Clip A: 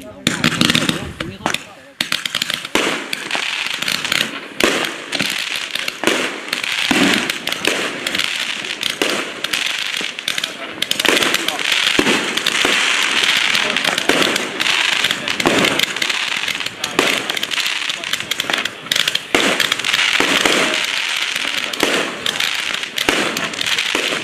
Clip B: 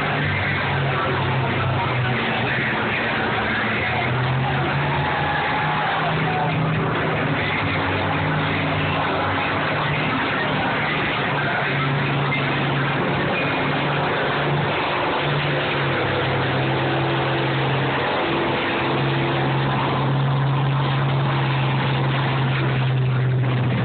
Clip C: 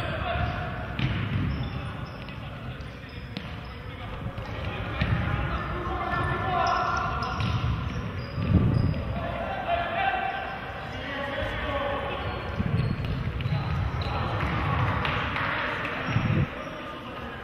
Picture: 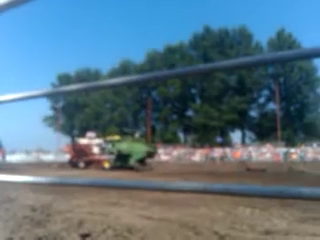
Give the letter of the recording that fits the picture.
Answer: B